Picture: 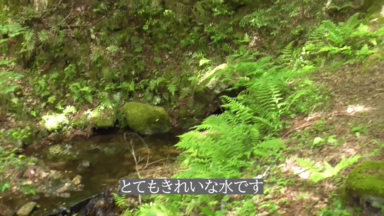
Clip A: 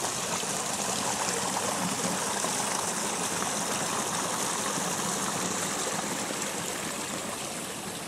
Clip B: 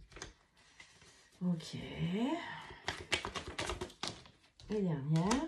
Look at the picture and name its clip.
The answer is A